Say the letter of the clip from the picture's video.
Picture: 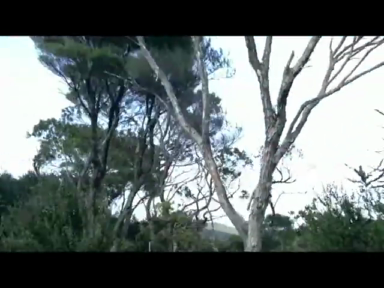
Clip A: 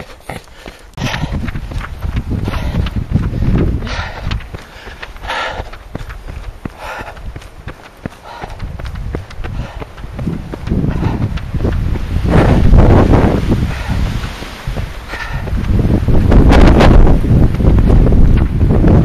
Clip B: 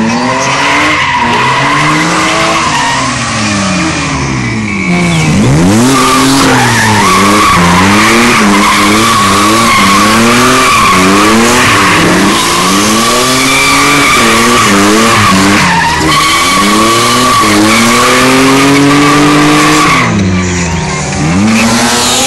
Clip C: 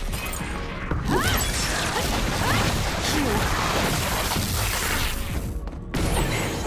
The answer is A